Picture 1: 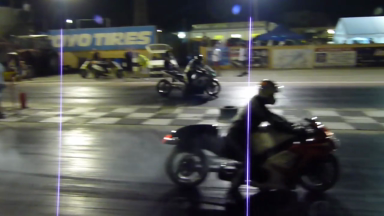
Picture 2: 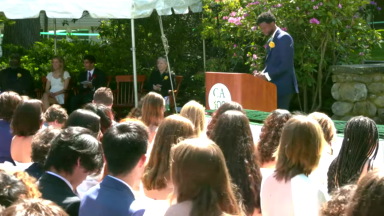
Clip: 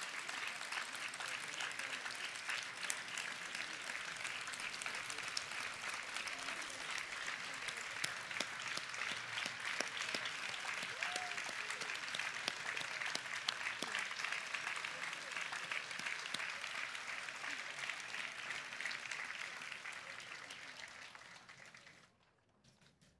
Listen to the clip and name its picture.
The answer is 2